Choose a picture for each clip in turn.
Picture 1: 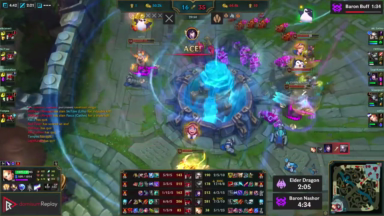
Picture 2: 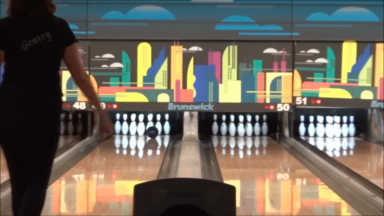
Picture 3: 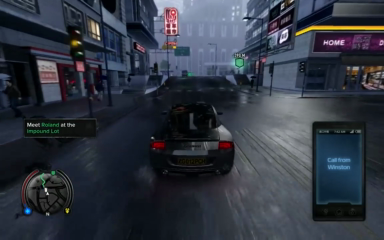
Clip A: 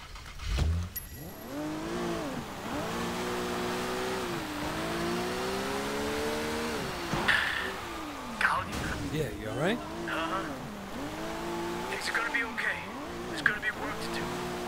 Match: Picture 3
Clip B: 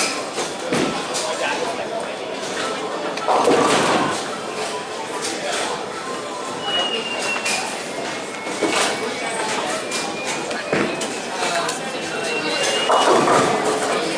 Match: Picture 2